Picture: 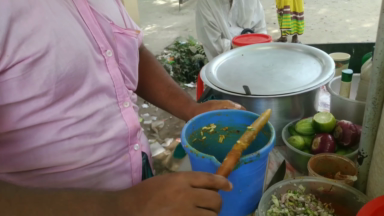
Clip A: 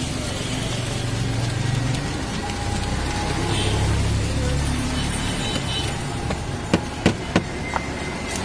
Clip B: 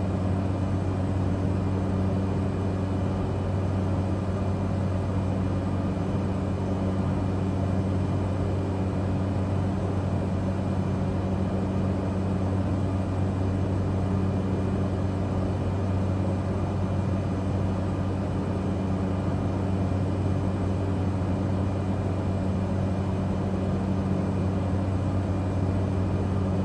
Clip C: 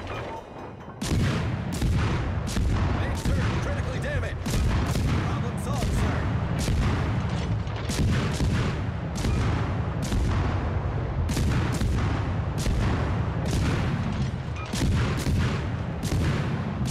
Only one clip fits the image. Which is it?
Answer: A